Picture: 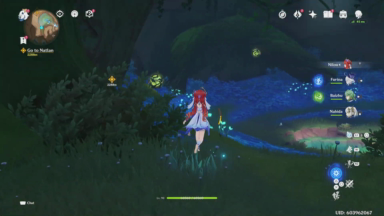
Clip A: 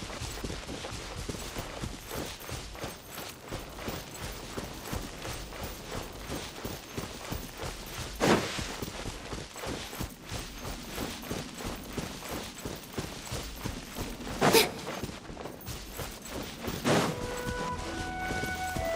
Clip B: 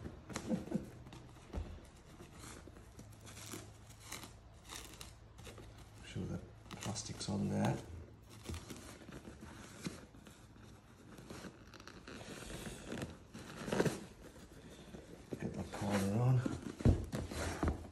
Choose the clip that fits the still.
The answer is A